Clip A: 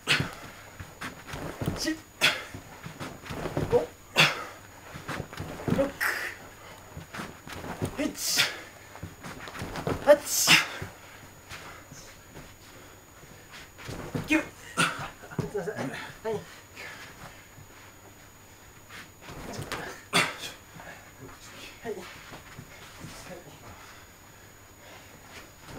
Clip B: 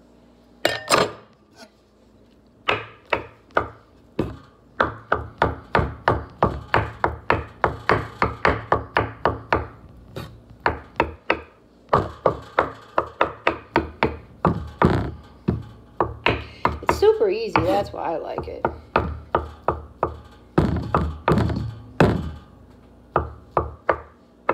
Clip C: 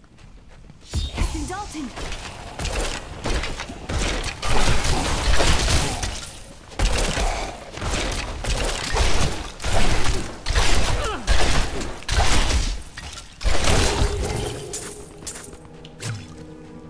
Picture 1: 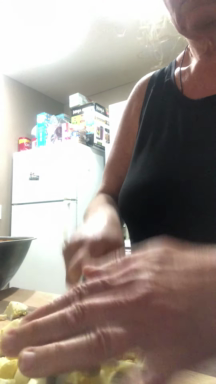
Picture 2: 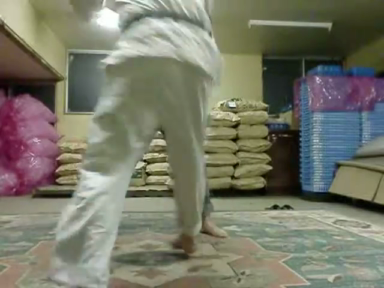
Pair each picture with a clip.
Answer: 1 B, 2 A